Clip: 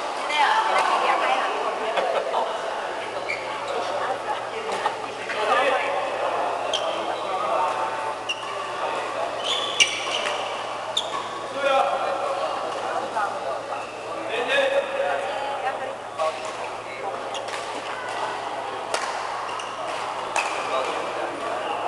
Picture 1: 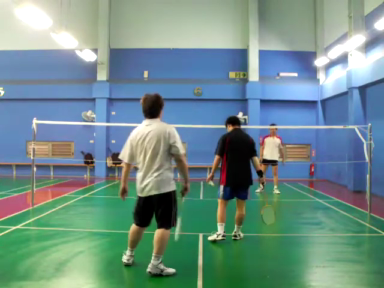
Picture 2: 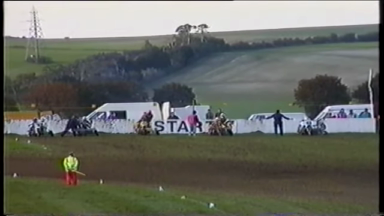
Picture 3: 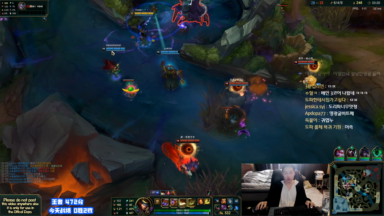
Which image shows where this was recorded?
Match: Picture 1